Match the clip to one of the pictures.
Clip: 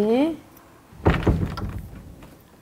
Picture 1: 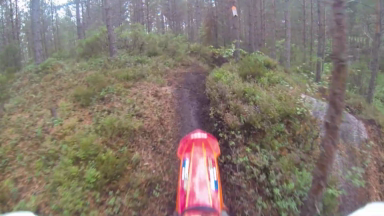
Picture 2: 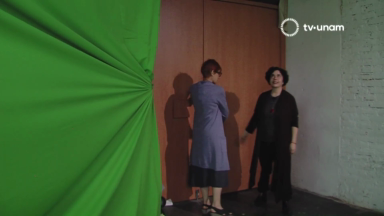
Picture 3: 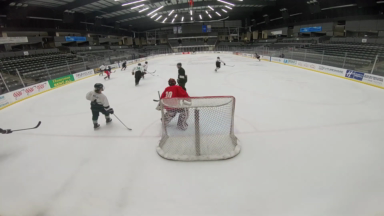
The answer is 2